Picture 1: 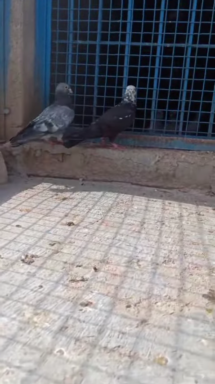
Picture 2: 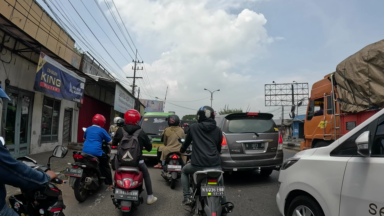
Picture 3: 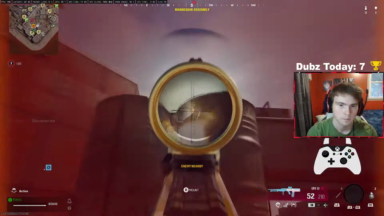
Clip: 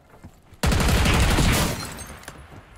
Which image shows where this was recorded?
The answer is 3